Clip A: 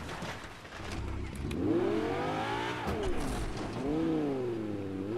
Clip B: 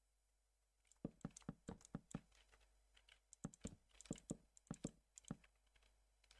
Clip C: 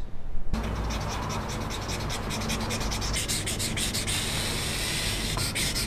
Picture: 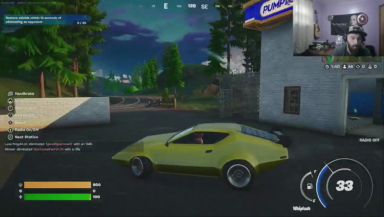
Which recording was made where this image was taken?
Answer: A